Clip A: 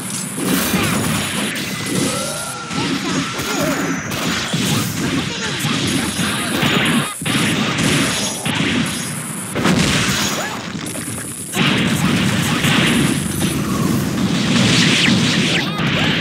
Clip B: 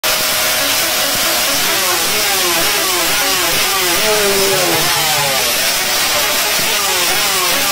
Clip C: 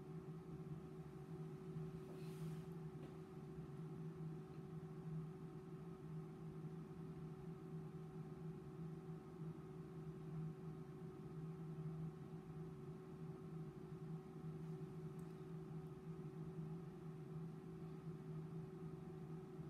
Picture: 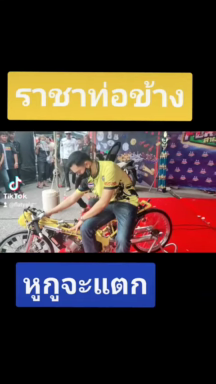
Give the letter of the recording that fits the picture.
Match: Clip B